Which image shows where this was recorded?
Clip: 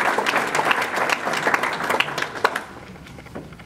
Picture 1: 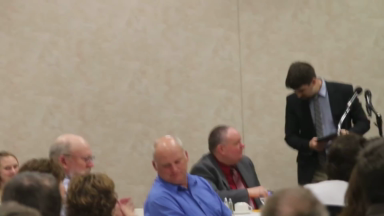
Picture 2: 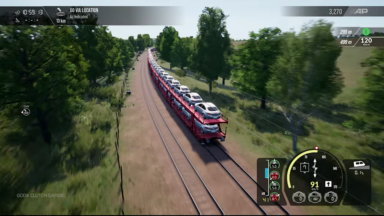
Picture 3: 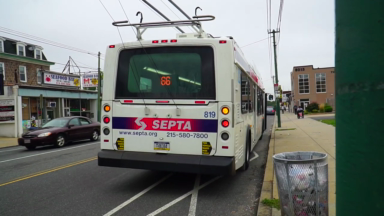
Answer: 1